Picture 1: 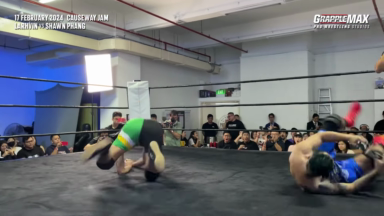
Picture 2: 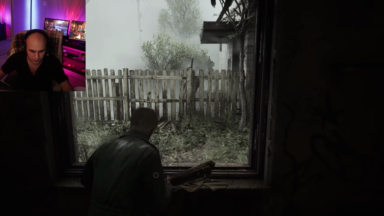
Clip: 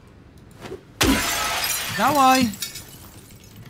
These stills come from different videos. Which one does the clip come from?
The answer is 2